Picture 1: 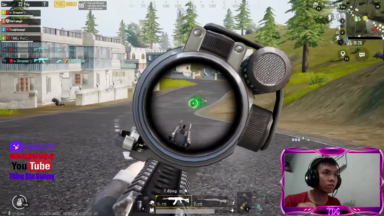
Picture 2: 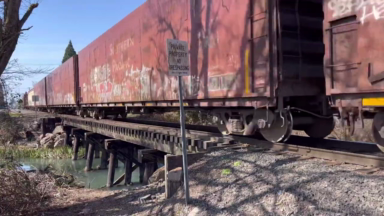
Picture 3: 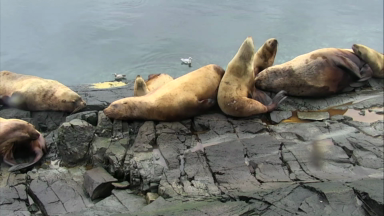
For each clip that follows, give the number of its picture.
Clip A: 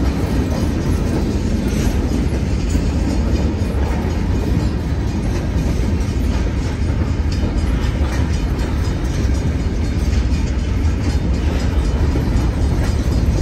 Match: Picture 2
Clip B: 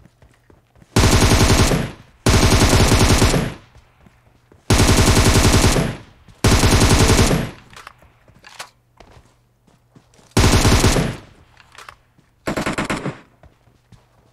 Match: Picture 1